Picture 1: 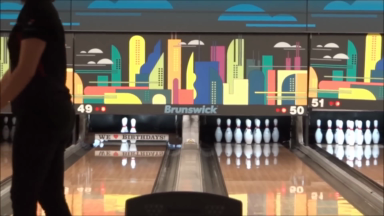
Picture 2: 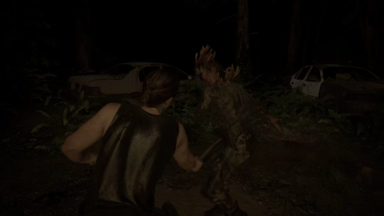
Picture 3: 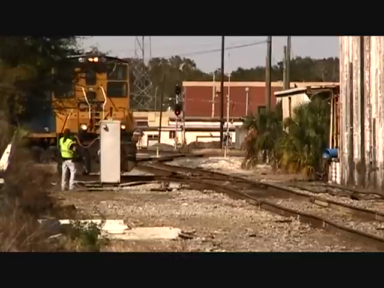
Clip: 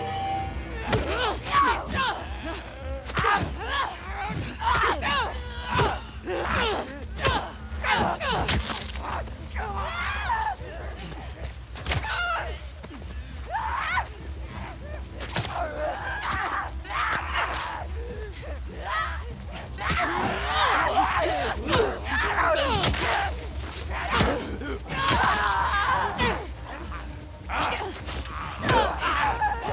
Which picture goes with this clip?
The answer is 2